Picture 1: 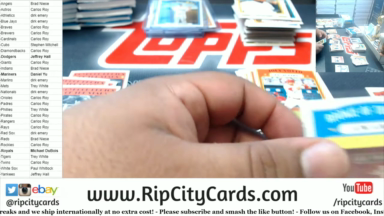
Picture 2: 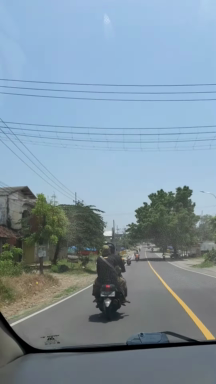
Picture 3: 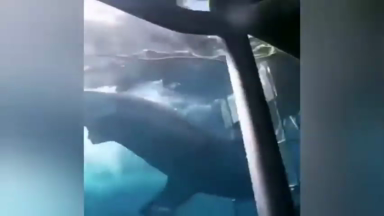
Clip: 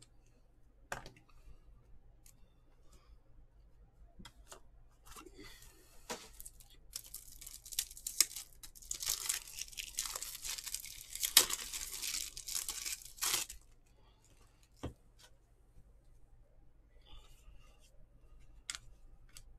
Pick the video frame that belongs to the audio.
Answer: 1